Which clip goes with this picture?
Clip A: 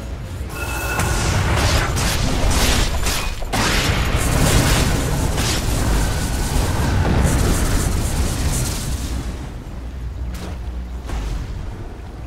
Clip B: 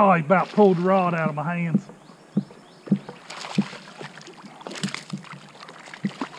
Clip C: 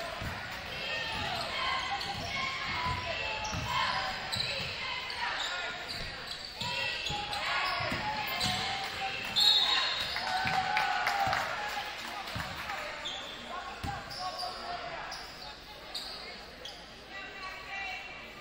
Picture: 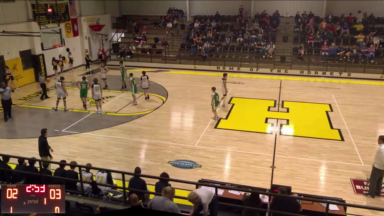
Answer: C